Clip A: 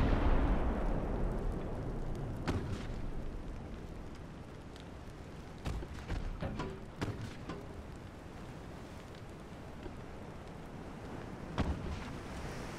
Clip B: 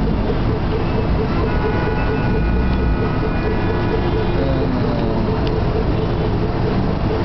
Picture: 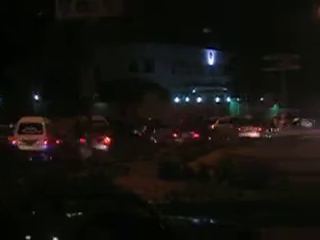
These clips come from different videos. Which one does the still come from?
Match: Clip B